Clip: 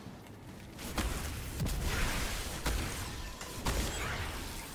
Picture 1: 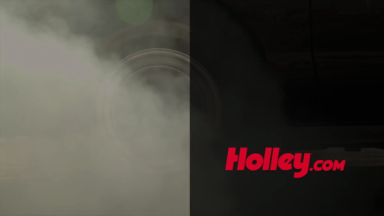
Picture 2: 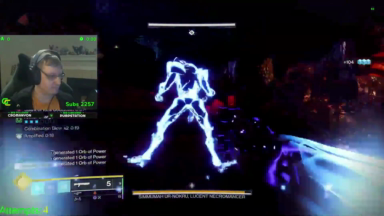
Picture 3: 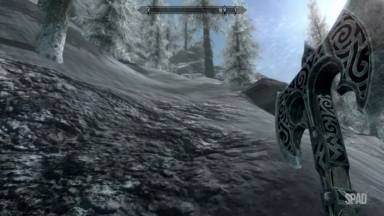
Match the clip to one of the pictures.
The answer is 2